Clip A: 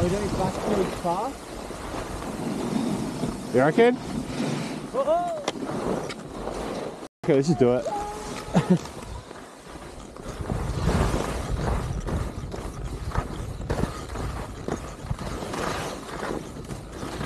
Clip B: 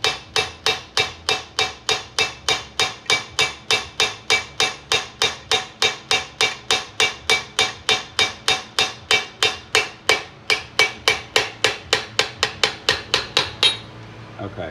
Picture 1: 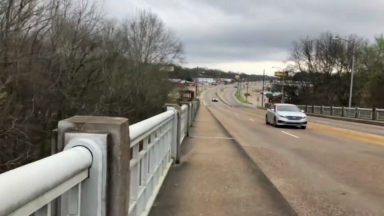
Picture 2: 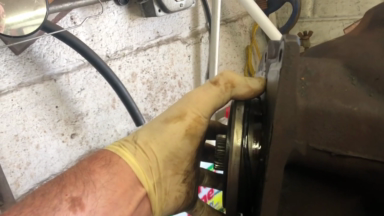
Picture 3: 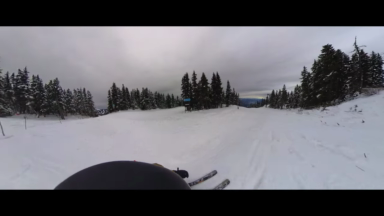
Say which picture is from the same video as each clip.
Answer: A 3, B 2